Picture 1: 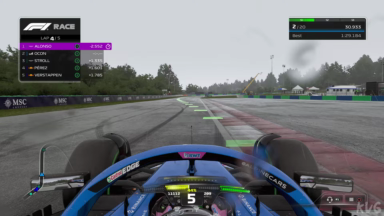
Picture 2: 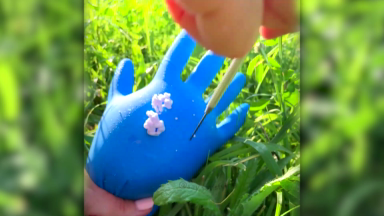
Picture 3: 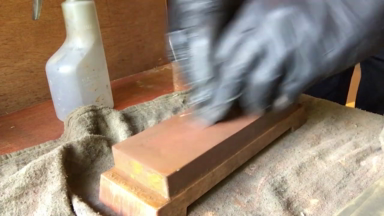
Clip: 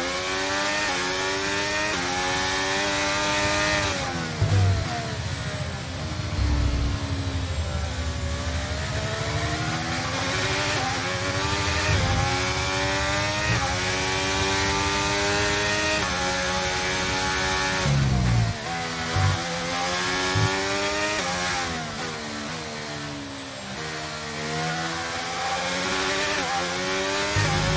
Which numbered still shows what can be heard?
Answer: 1